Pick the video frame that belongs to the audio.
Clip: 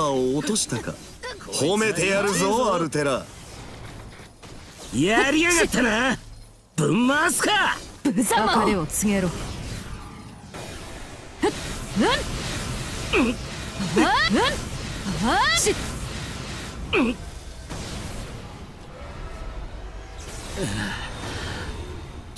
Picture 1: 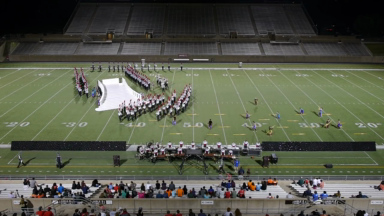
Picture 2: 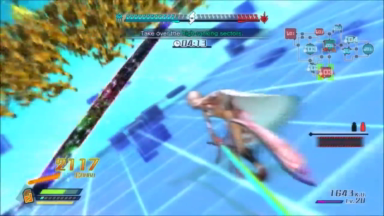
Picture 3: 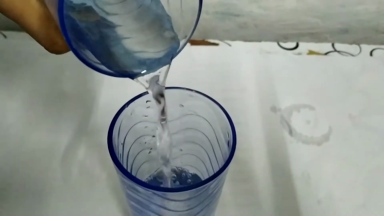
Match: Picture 2